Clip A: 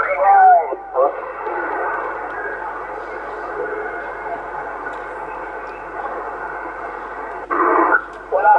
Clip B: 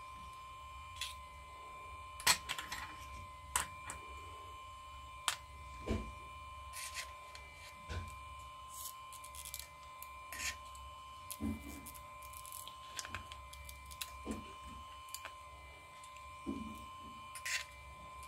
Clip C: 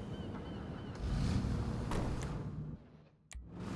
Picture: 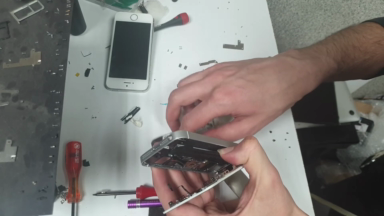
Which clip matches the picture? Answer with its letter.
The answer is B